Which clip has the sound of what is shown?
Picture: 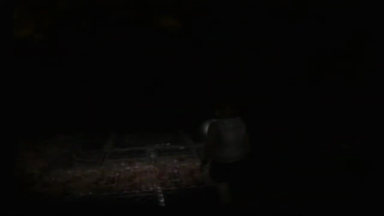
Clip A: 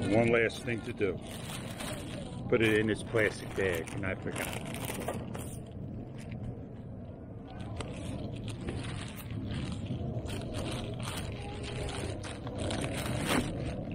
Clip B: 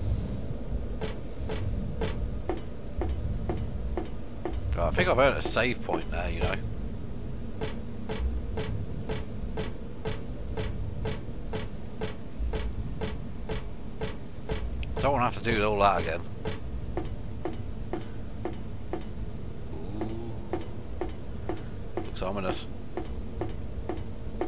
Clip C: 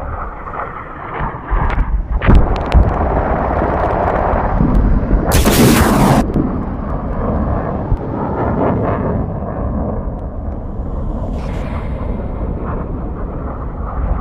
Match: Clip B